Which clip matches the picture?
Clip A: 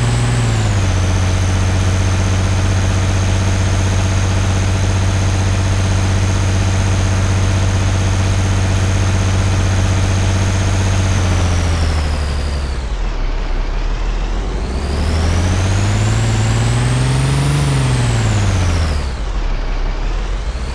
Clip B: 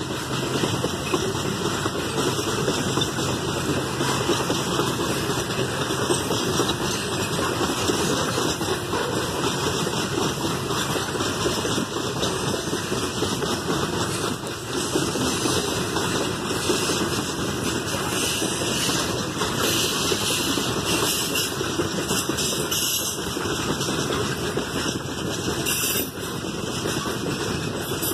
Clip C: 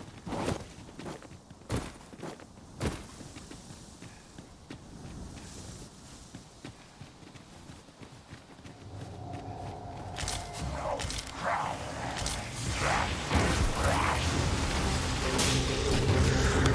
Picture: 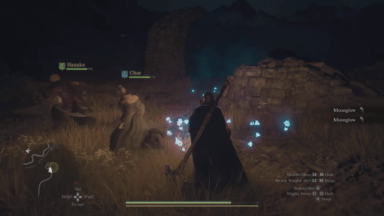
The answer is C